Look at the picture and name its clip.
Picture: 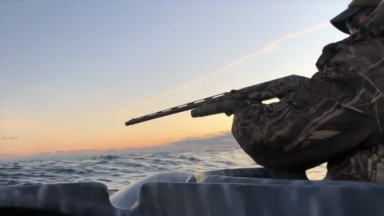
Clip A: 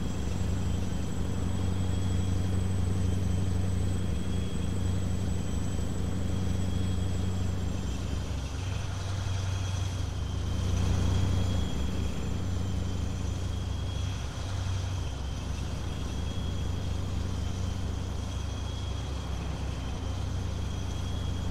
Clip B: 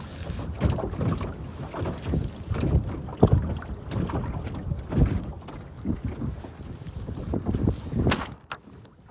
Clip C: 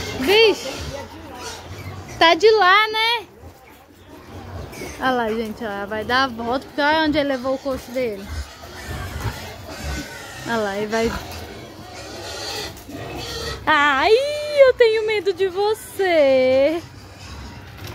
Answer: B